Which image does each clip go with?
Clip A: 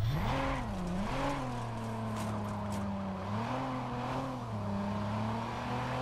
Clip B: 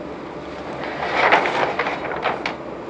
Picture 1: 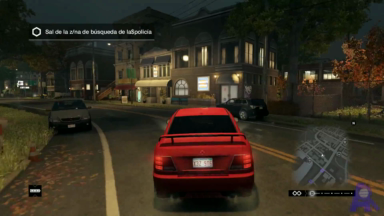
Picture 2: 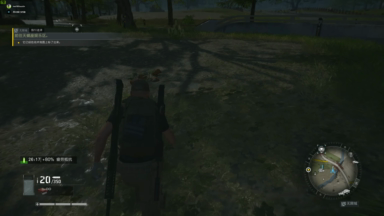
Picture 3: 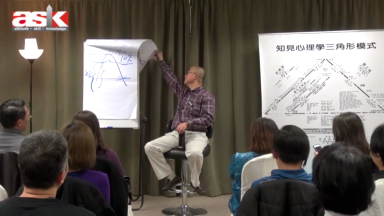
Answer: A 1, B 3